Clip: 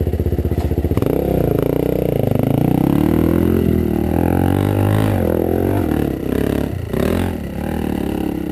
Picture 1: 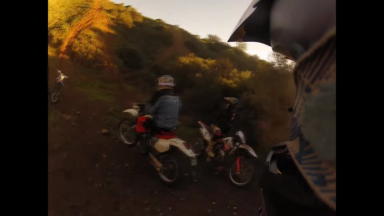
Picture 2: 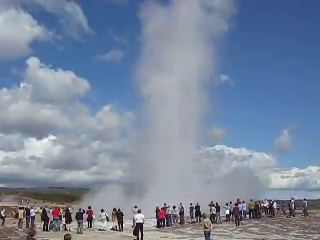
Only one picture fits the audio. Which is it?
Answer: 1